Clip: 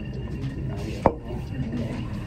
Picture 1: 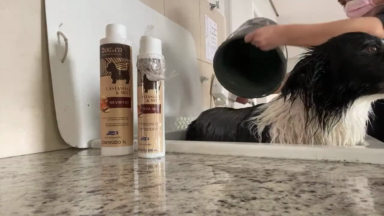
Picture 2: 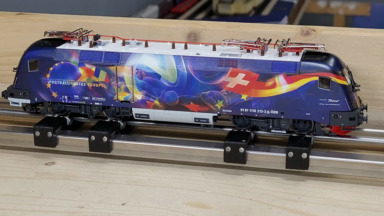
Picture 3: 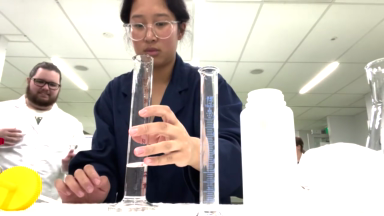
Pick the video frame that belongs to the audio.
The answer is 3